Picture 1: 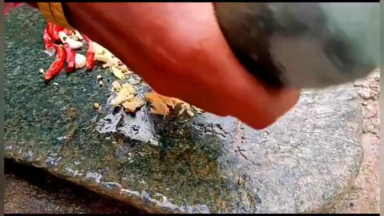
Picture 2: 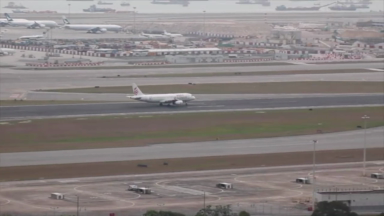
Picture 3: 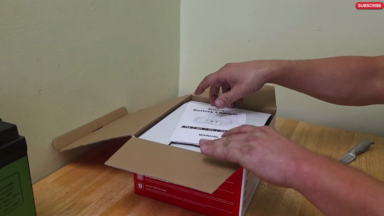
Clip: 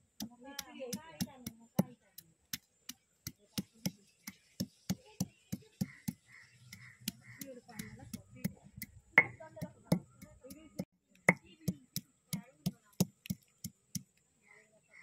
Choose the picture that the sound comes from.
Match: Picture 1